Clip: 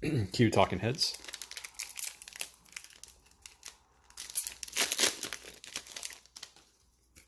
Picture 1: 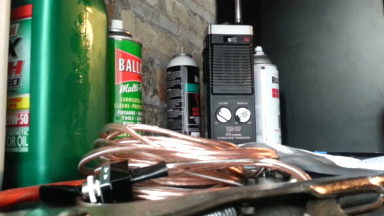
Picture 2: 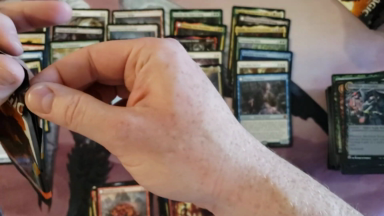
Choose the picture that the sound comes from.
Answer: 2